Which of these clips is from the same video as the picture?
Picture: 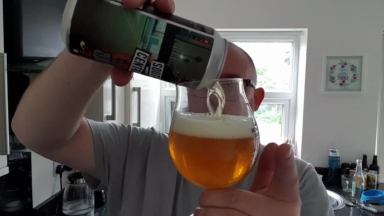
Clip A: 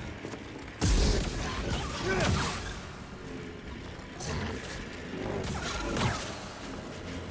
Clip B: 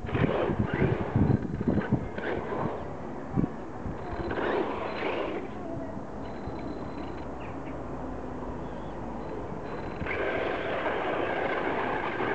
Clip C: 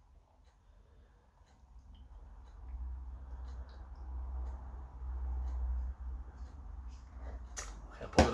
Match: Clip C